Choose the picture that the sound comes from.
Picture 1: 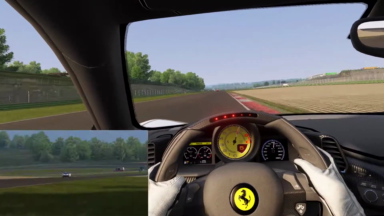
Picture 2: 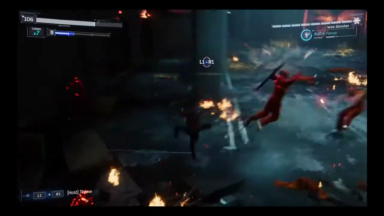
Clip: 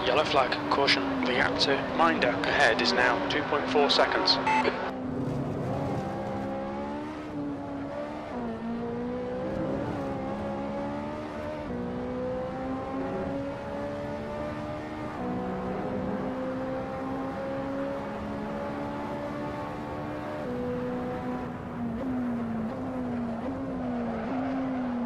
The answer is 1